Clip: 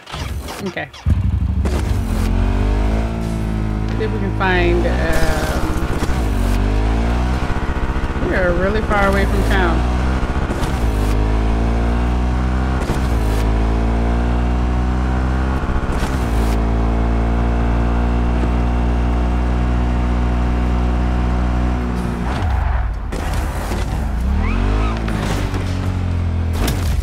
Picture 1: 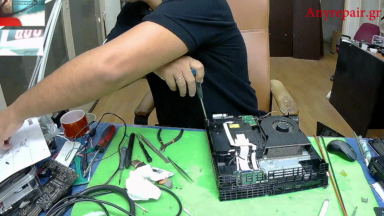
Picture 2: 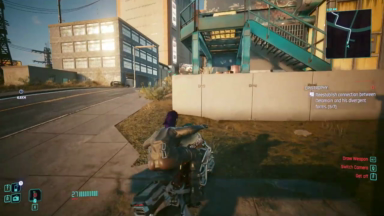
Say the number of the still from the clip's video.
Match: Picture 2